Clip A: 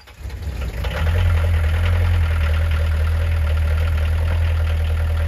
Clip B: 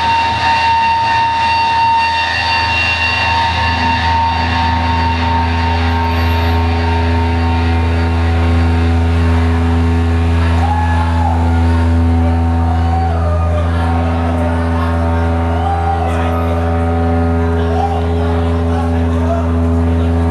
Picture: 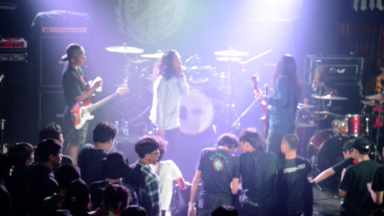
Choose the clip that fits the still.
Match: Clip B